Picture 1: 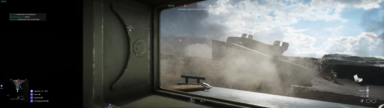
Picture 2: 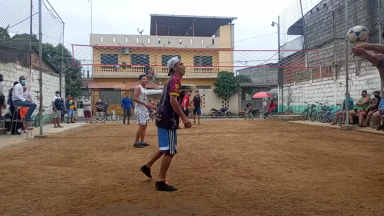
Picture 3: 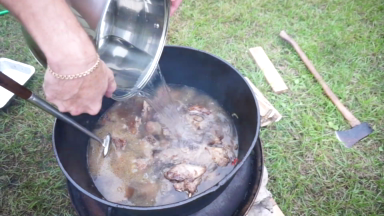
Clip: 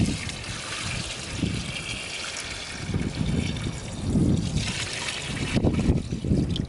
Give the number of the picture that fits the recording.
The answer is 3